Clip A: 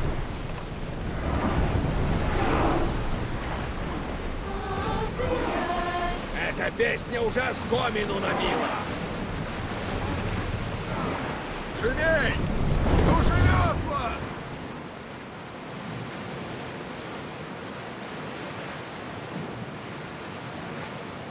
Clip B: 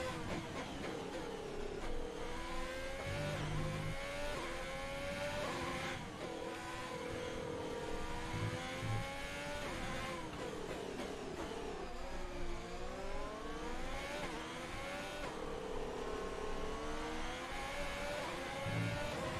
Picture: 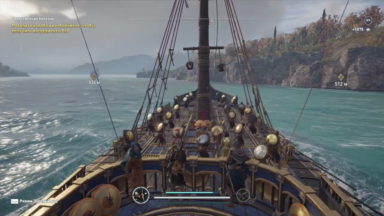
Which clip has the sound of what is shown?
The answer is A